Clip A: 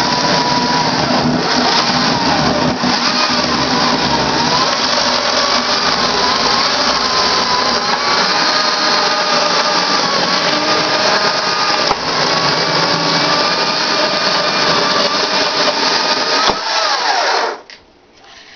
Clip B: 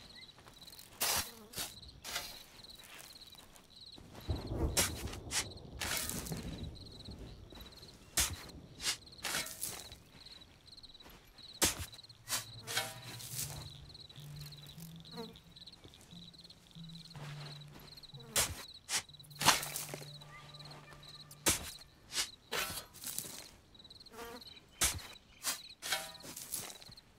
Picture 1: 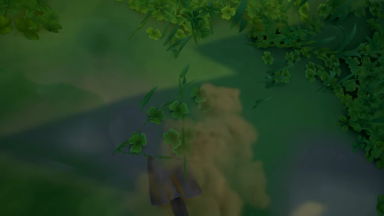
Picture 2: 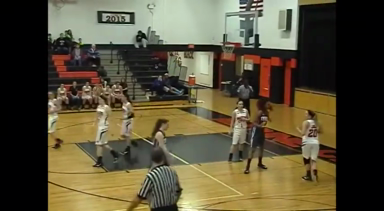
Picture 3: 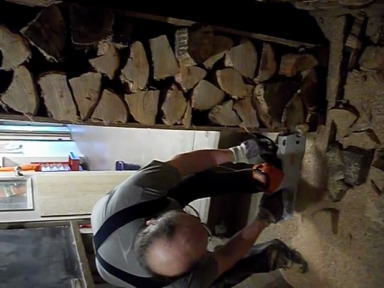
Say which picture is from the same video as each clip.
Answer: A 3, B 1